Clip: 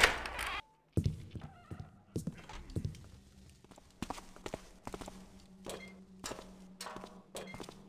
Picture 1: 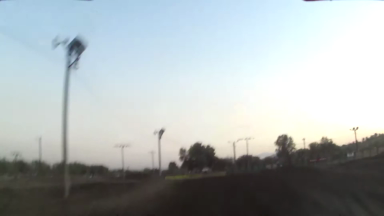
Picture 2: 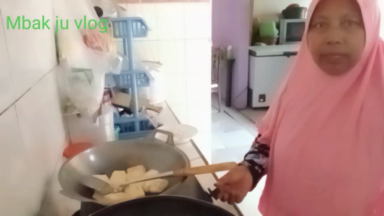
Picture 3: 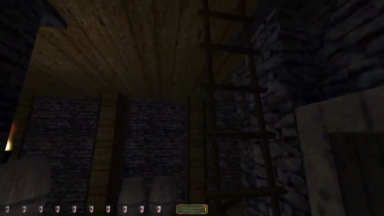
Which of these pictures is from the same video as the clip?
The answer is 3